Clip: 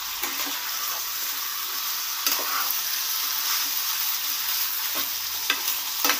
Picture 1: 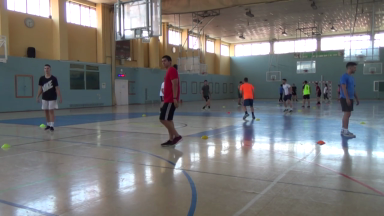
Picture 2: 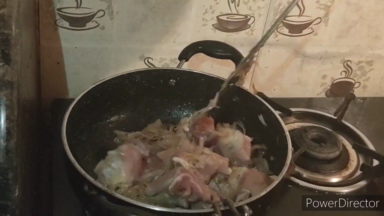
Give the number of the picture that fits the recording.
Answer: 2